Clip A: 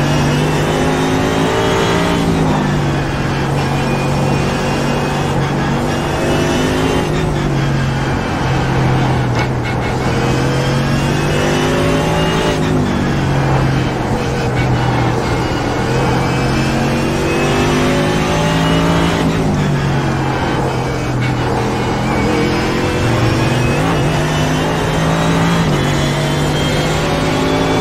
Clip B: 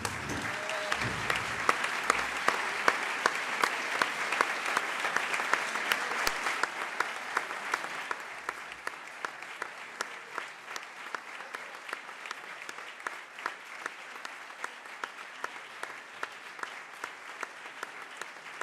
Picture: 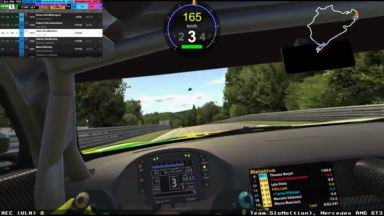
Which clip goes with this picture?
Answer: A